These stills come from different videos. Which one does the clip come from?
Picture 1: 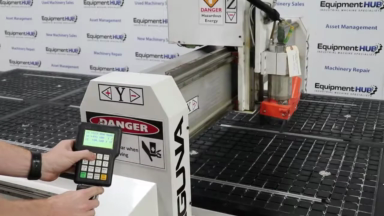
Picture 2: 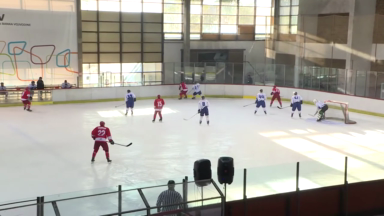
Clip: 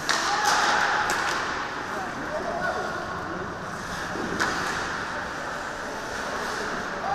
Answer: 2